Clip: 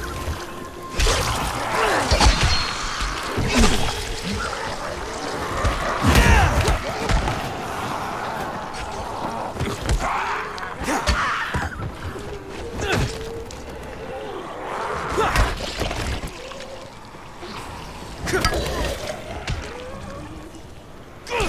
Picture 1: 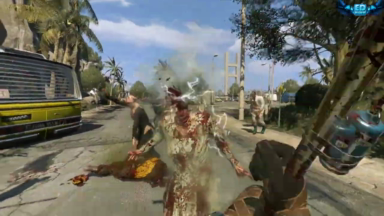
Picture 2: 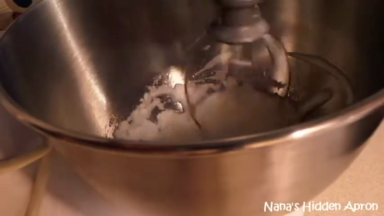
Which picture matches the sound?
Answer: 1